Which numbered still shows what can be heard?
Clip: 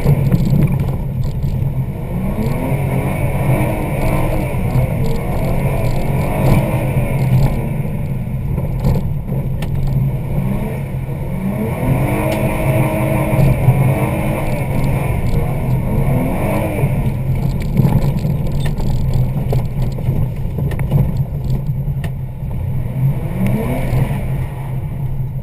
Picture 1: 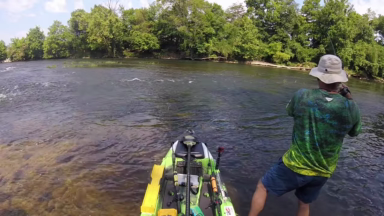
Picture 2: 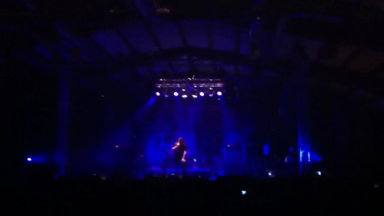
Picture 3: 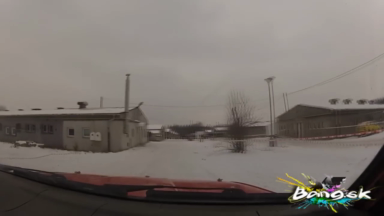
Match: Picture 3